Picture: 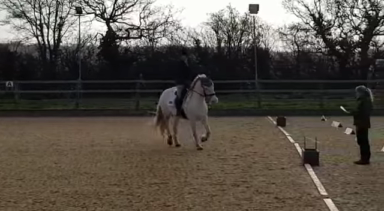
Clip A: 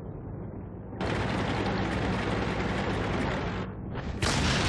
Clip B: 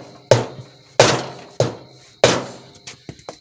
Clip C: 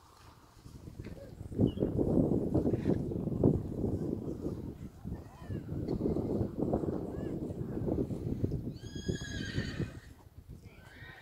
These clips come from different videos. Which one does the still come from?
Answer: C